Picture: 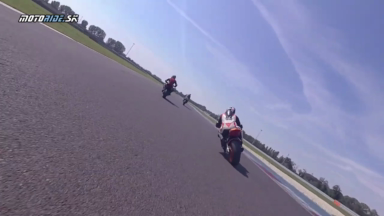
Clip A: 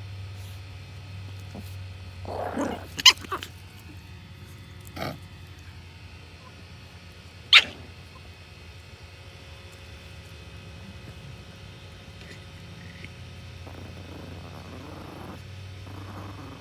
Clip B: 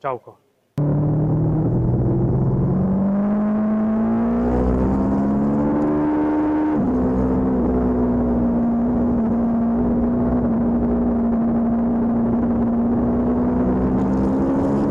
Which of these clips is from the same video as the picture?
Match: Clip B